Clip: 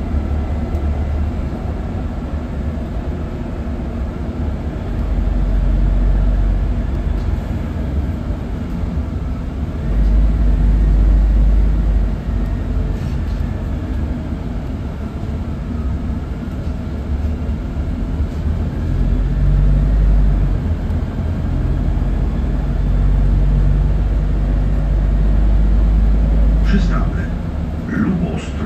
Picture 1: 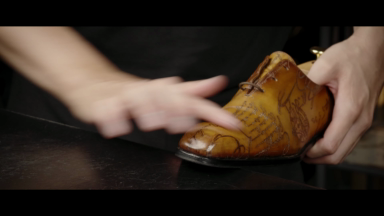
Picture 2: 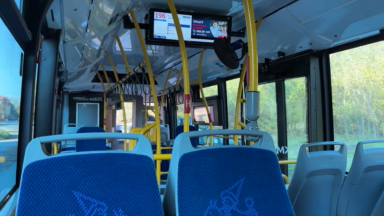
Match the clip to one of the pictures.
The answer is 2